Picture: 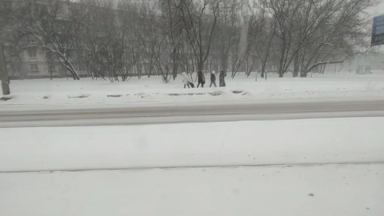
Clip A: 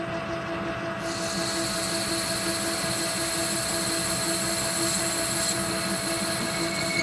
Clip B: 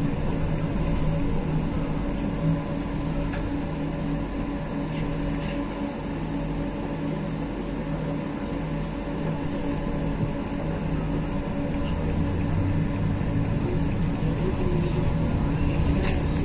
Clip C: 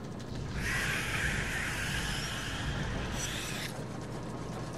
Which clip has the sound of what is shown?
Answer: B